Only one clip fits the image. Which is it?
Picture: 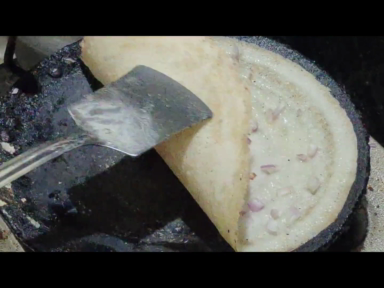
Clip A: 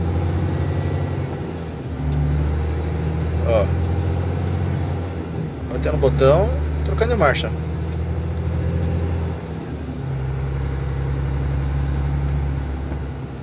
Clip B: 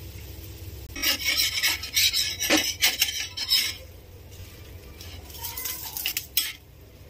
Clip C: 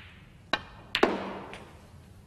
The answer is B